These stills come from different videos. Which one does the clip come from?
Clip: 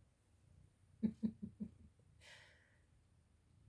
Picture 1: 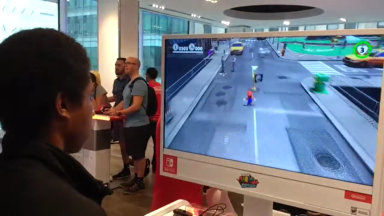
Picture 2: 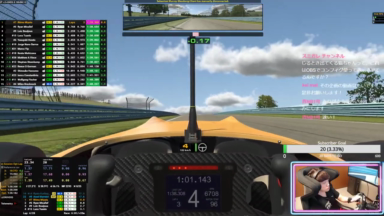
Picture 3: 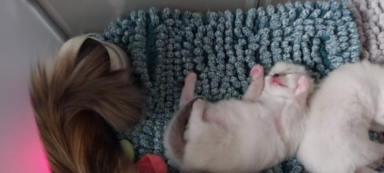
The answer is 3